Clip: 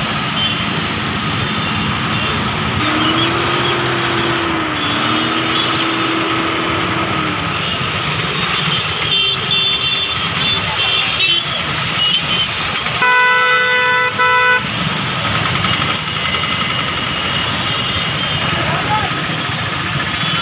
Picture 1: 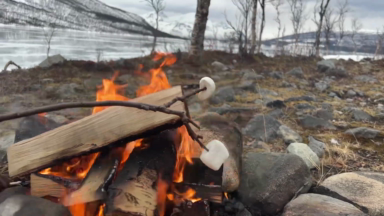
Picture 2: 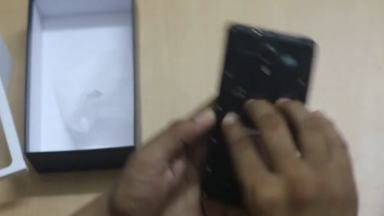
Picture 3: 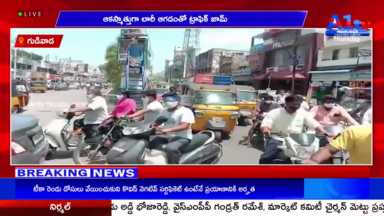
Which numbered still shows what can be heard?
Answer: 3